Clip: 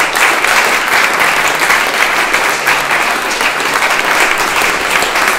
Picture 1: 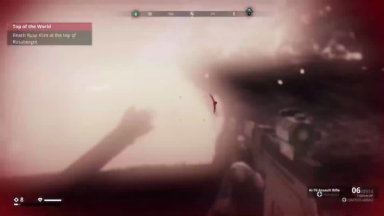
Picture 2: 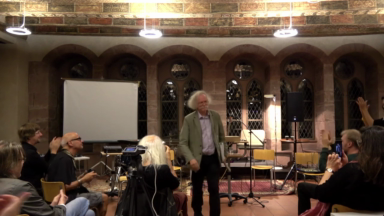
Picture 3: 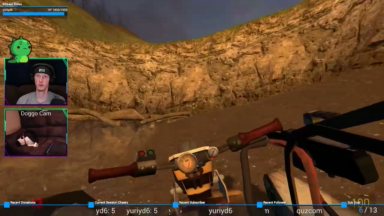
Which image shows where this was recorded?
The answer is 2